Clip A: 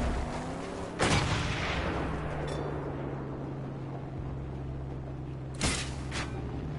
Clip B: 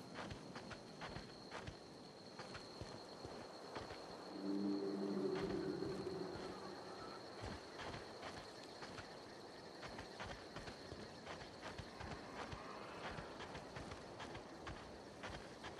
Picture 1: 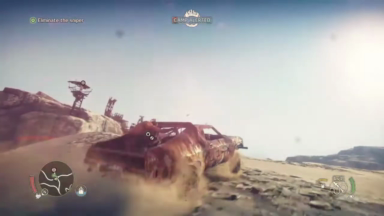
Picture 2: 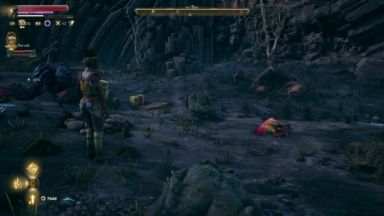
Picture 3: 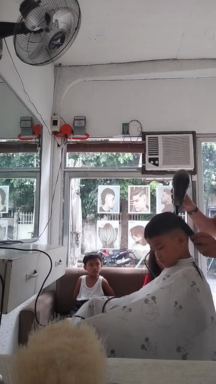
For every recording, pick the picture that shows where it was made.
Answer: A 1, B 2